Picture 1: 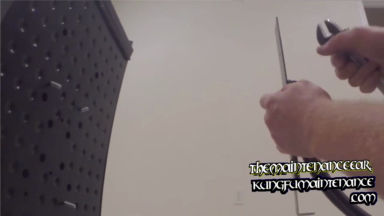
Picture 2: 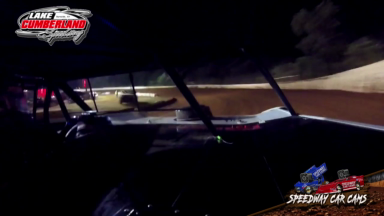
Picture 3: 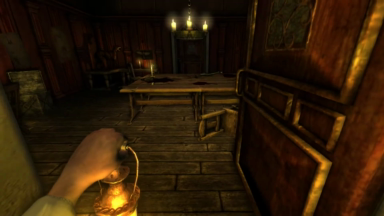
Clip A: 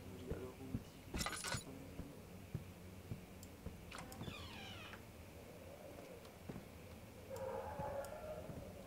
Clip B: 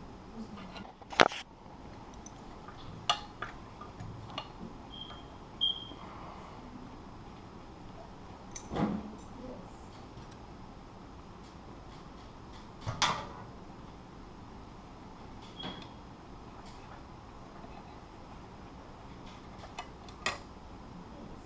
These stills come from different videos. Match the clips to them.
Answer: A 3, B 1